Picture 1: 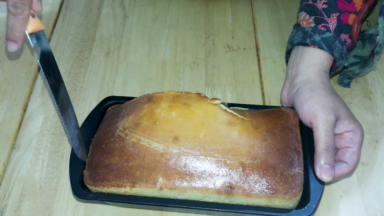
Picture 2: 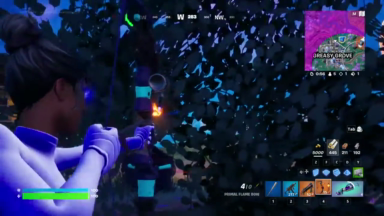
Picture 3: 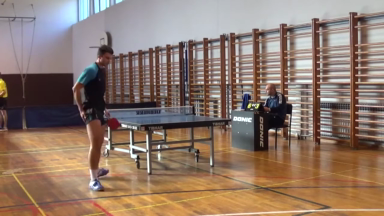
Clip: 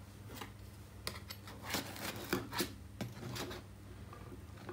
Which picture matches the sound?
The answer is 1